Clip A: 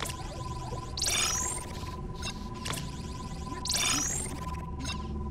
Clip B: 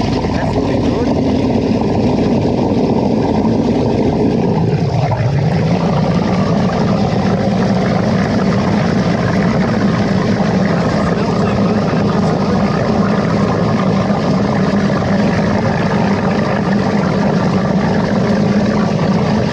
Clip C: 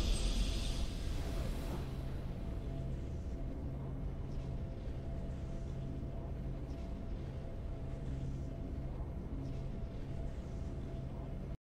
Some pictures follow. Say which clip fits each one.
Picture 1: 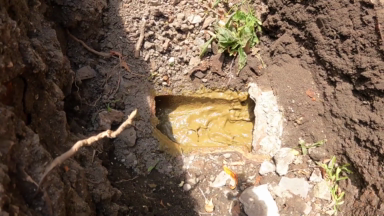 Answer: B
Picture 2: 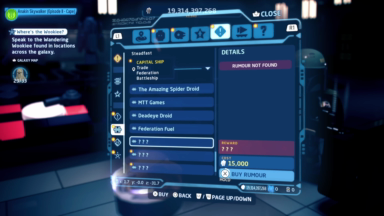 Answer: A